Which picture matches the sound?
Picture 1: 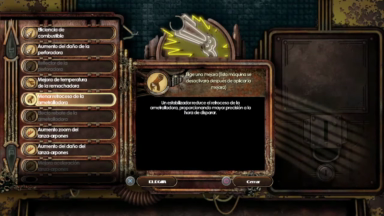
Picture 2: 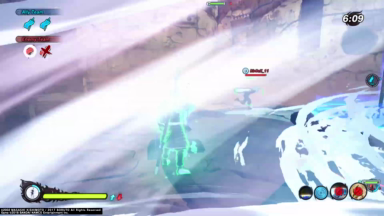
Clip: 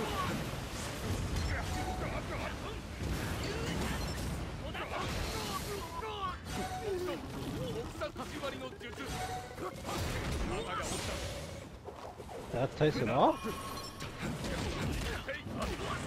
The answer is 2